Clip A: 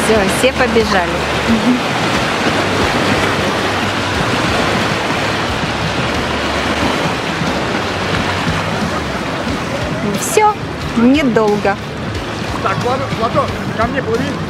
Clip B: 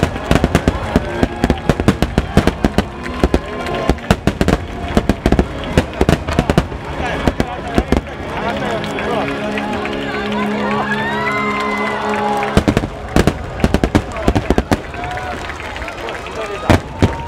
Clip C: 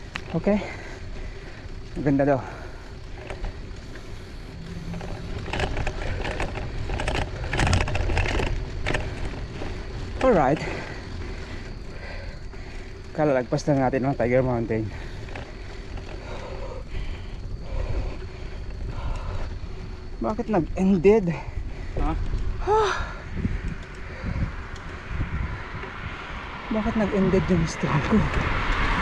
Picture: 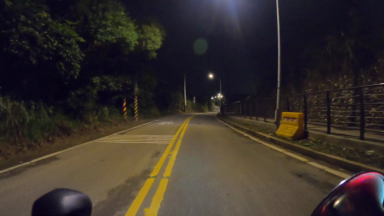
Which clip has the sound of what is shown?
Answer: C